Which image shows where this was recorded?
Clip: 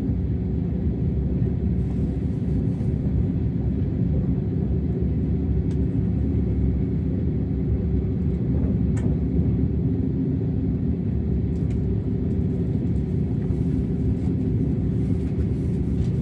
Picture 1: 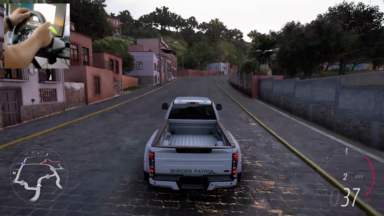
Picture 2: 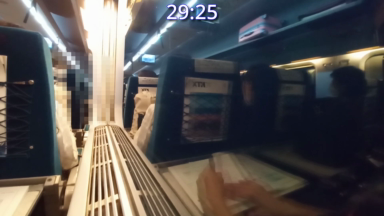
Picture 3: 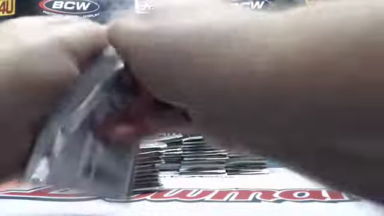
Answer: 2